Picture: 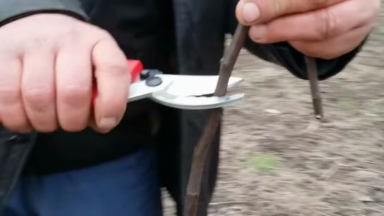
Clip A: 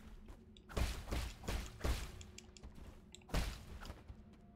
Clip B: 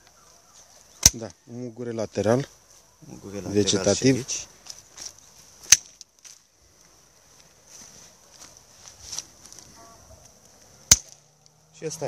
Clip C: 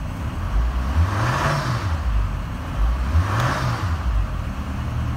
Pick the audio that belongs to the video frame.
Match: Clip B